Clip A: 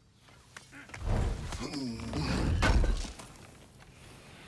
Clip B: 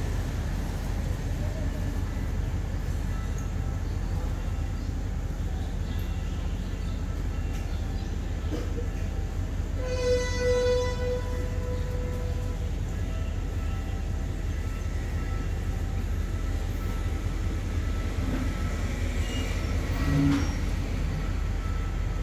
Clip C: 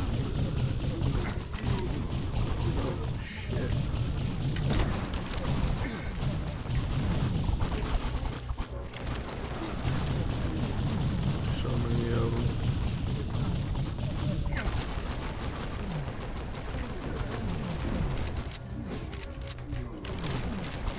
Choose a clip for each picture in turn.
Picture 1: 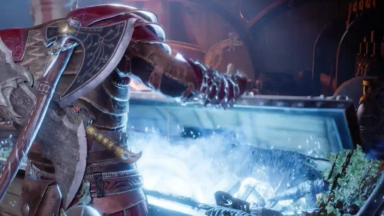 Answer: A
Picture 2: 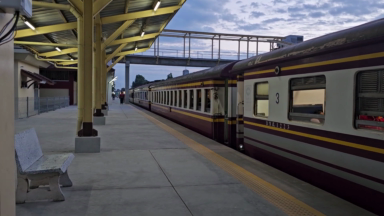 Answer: B